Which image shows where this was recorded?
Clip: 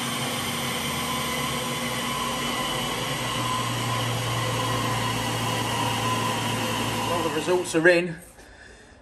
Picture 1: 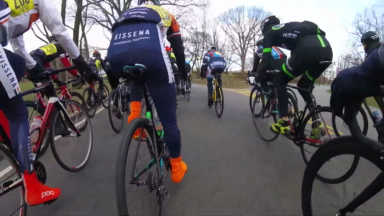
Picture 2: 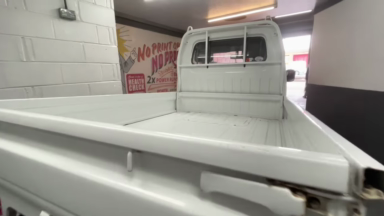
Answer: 2